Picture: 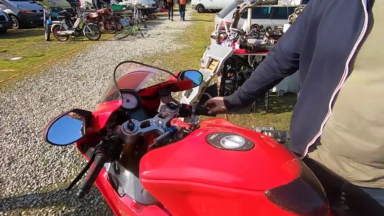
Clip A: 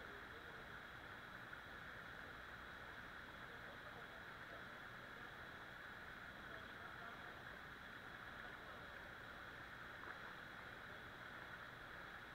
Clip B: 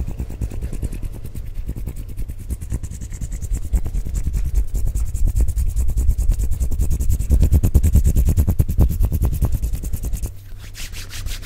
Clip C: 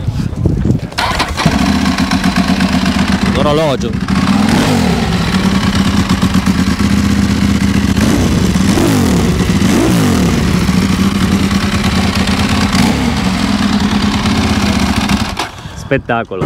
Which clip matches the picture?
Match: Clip C